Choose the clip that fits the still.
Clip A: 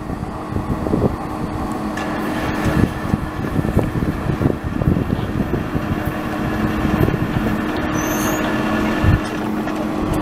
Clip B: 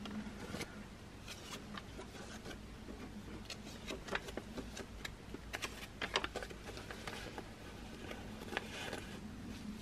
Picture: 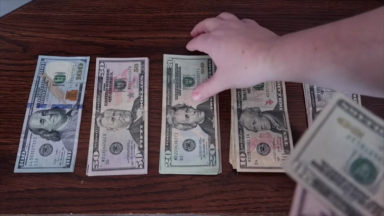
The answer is B